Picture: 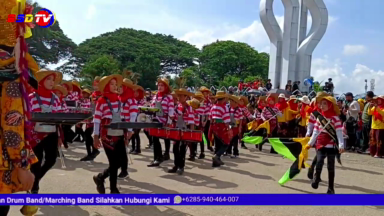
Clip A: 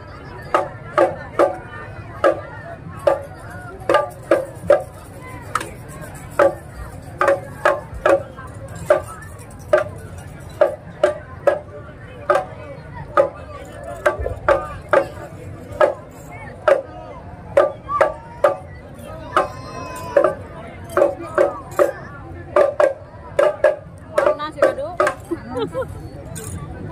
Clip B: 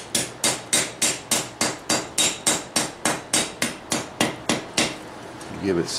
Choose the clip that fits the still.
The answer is A